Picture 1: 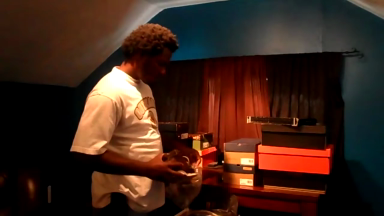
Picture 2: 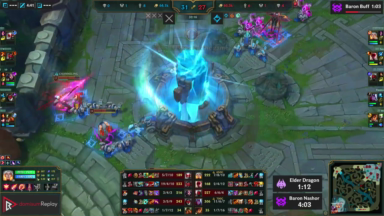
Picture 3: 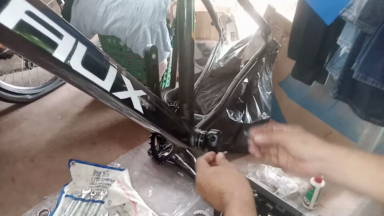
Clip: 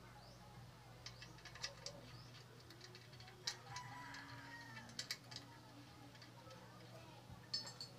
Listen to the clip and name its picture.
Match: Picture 3